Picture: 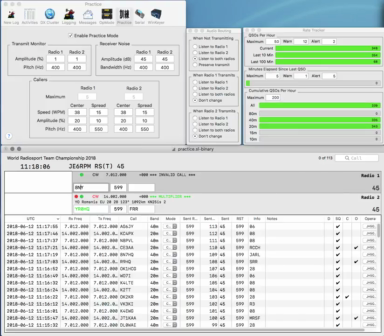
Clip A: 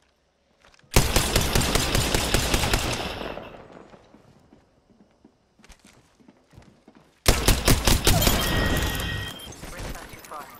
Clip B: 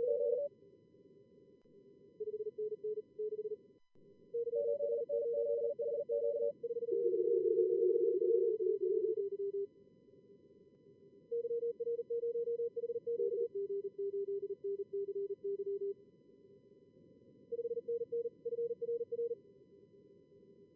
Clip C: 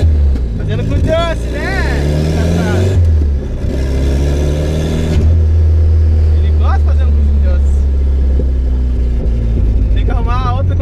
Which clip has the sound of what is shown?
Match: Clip B